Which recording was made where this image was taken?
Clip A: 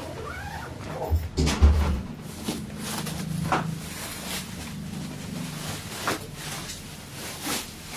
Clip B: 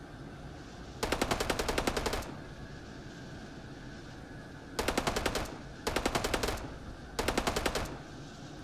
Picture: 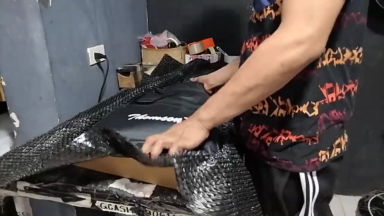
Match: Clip A